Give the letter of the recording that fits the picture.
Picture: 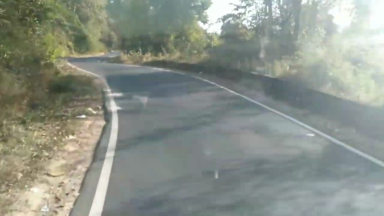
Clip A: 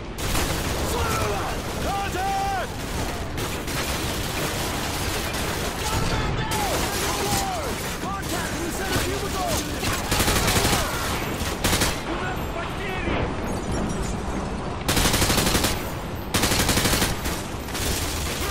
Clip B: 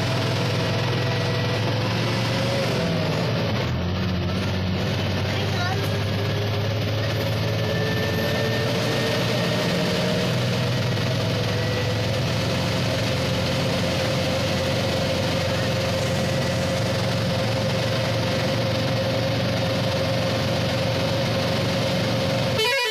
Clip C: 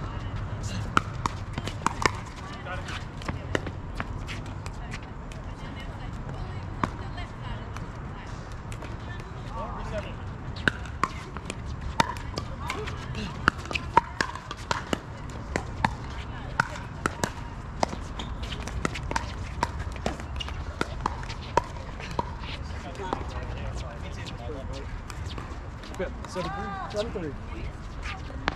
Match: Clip B